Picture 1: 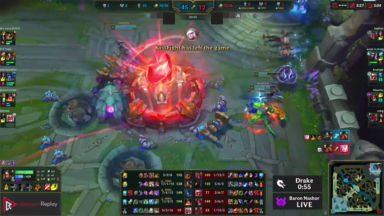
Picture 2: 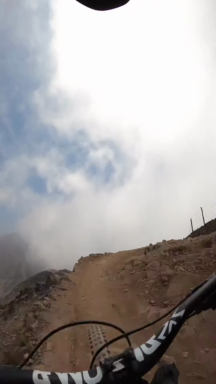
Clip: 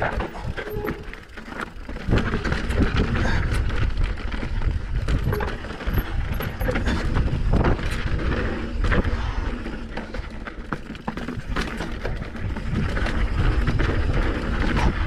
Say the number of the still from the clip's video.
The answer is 2